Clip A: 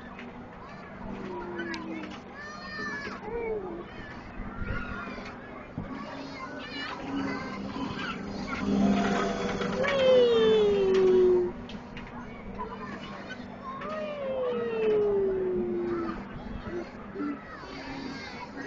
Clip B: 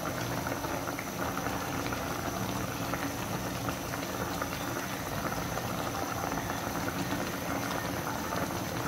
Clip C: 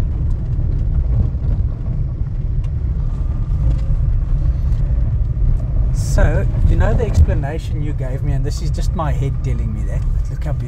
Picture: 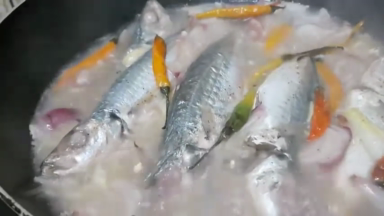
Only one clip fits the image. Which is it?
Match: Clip B